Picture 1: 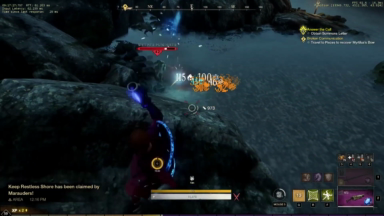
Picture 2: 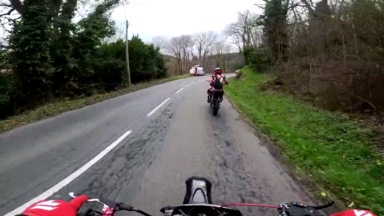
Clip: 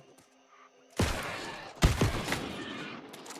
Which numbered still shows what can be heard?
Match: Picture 1